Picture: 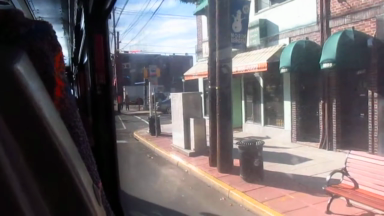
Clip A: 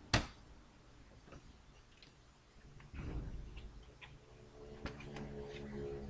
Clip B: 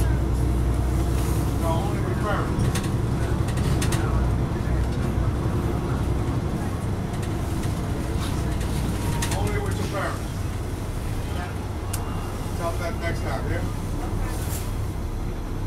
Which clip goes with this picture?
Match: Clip B